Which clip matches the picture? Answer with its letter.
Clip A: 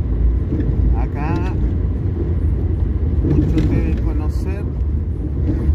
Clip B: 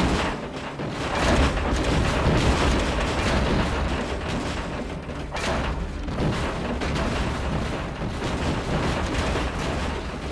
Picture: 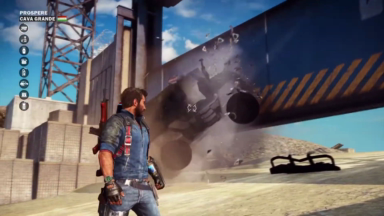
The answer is B